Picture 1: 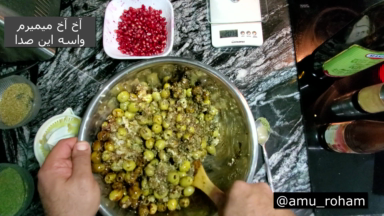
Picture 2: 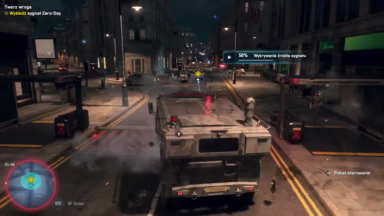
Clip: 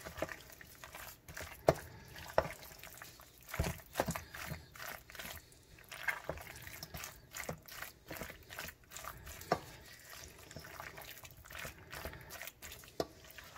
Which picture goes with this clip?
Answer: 1